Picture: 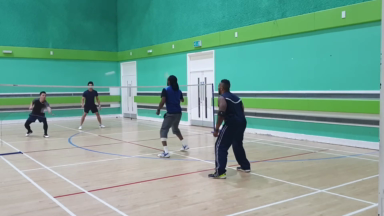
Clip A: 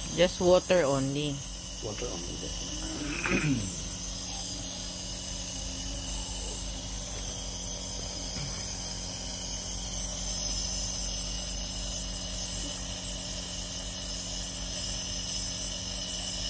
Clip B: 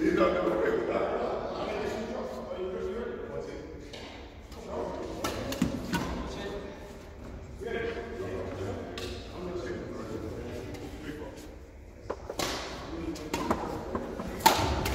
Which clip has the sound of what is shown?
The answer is B